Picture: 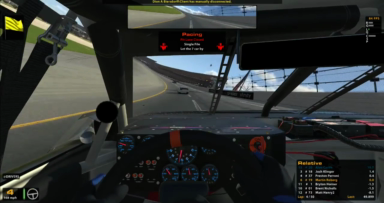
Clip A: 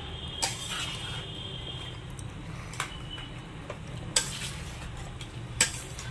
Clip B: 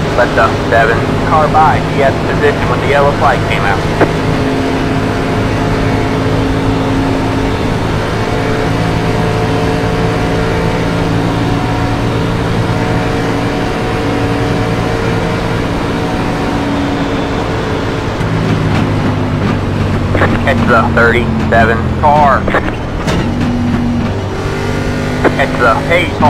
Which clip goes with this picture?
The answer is B